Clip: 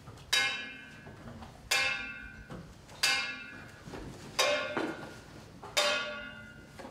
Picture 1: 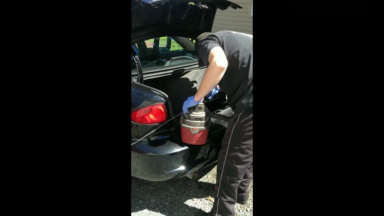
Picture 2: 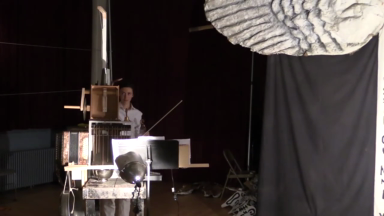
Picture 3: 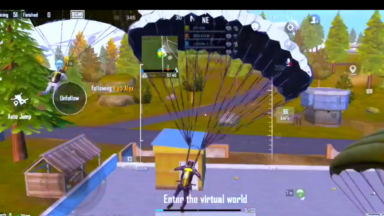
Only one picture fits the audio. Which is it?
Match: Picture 2